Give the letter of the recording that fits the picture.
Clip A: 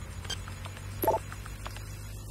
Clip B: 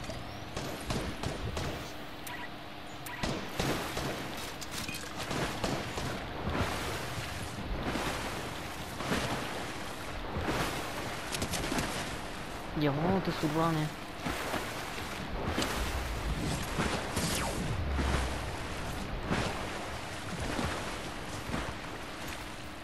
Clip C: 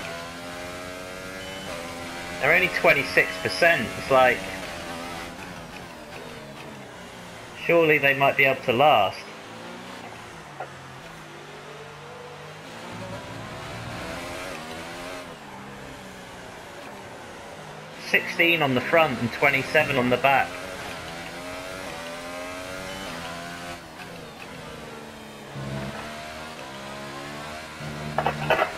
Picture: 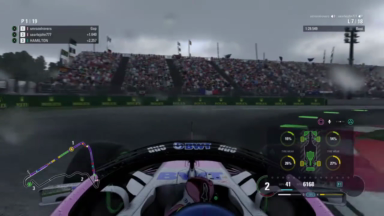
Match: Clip C